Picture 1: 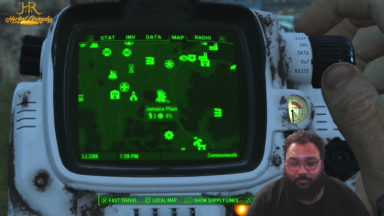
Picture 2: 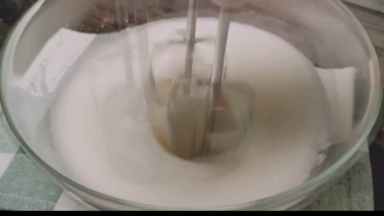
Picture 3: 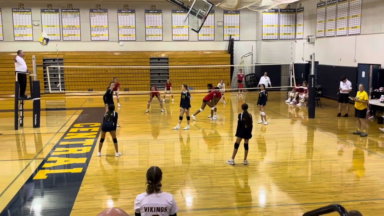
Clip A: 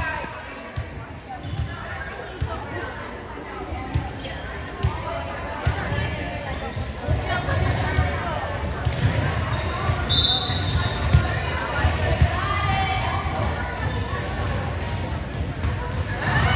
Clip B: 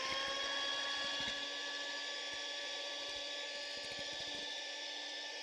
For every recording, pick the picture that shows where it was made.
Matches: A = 3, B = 2